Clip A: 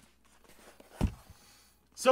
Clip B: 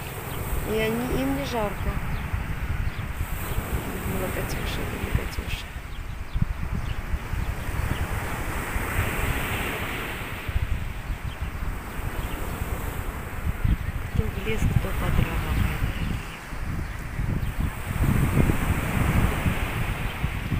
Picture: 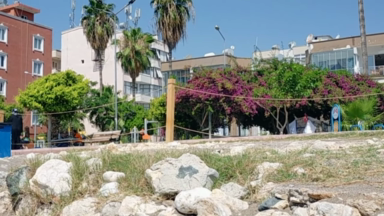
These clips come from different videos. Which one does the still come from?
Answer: B